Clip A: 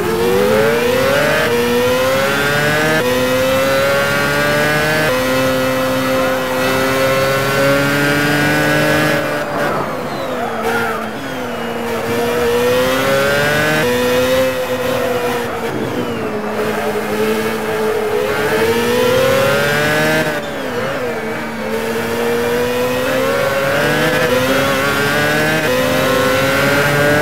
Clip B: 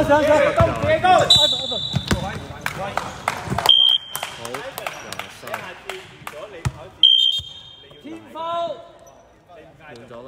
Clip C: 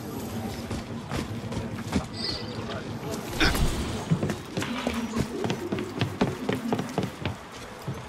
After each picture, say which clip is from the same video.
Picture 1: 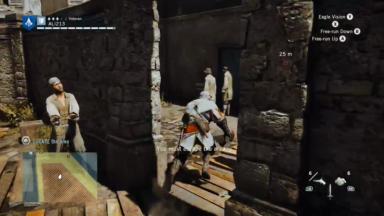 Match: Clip C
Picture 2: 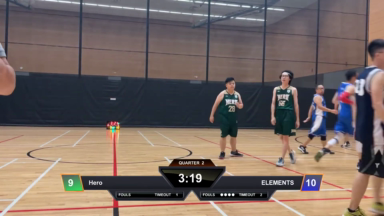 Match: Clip B